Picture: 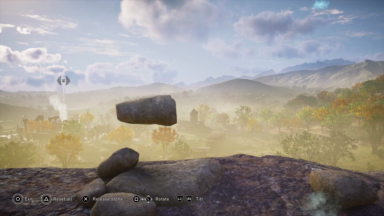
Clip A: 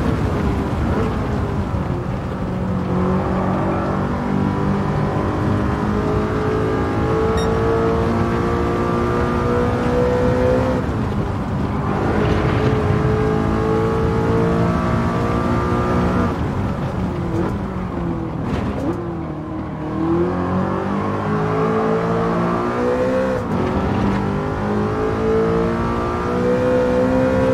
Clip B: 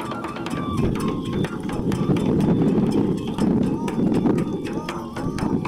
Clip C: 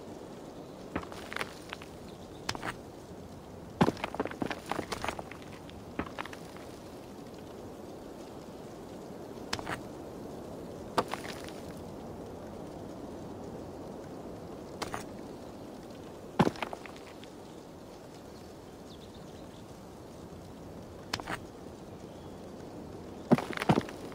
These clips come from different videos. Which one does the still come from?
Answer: C